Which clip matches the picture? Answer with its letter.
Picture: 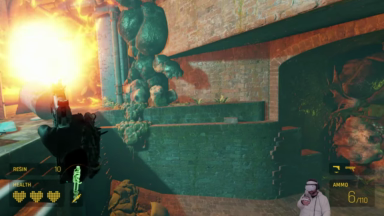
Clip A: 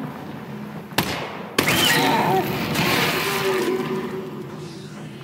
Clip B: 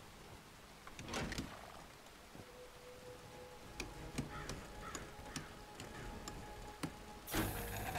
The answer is A